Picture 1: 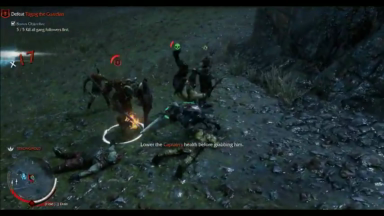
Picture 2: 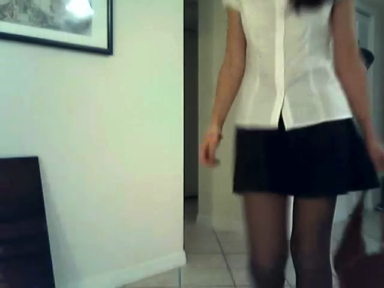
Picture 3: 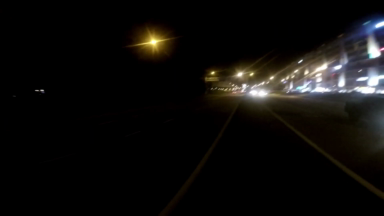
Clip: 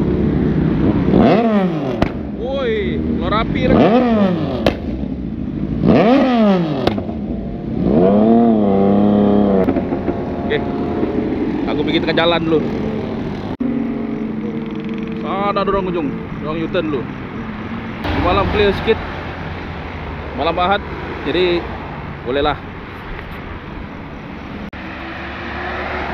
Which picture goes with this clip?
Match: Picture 3